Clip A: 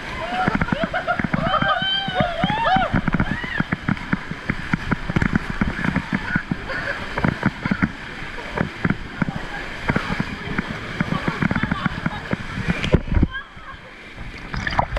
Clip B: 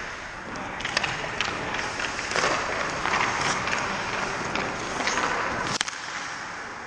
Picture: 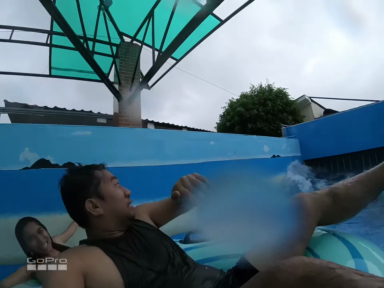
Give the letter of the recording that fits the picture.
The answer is A